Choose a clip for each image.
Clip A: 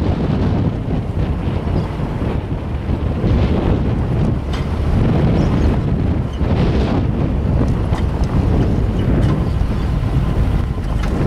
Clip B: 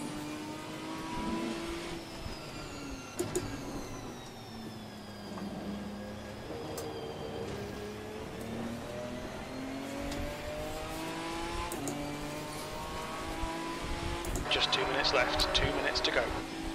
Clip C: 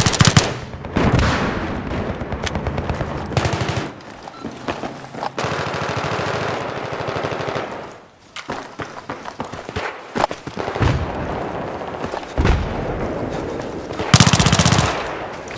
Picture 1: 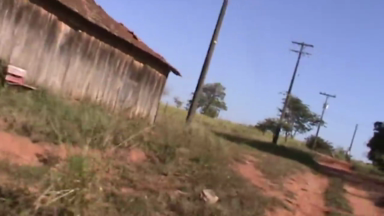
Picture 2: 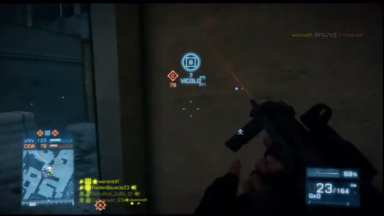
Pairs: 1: A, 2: C